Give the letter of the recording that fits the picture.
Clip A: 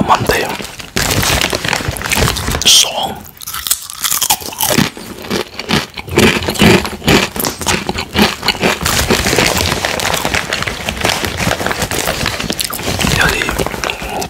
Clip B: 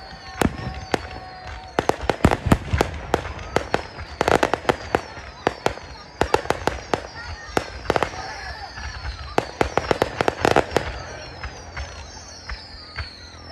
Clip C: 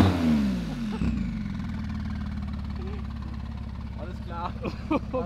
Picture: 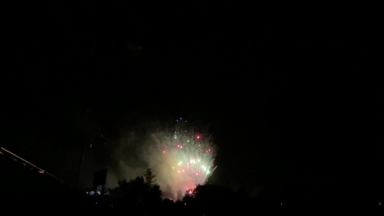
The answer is B